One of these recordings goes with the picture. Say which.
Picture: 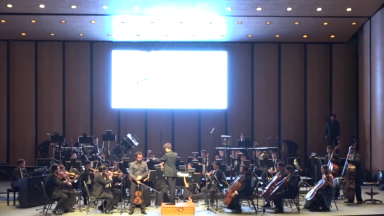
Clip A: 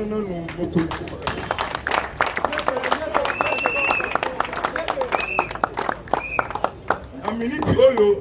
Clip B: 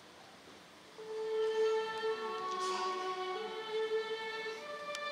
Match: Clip B